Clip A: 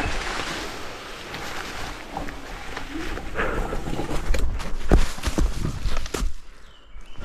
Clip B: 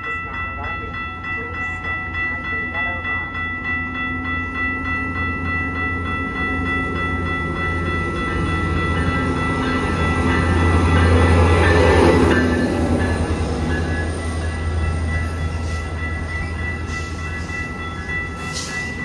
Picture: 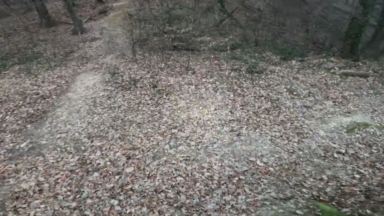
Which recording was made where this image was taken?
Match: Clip A